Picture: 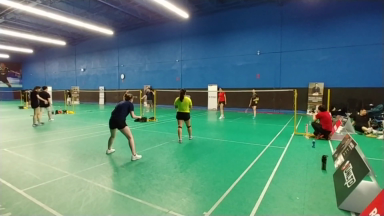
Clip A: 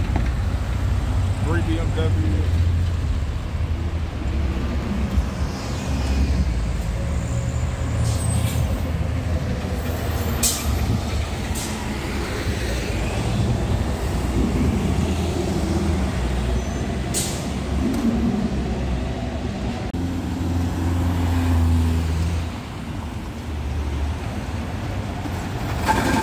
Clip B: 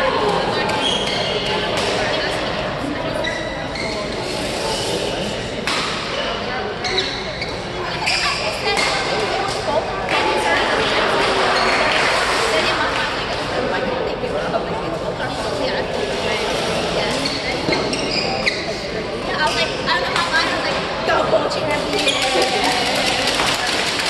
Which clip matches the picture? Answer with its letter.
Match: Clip B